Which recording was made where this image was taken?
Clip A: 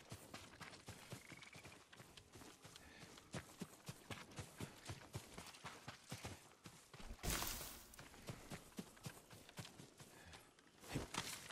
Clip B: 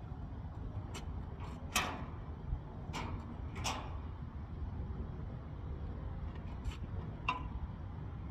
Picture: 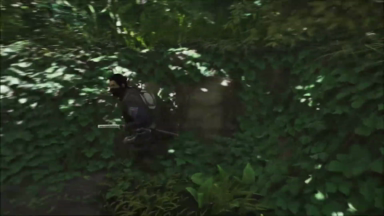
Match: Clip A